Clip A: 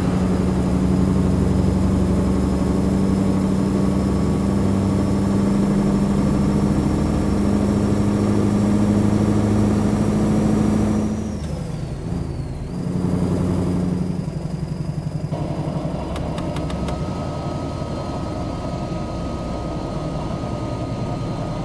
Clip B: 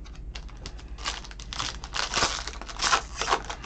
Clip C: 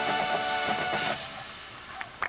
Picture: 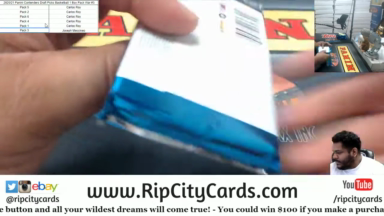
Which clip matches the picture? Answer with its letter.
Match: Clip B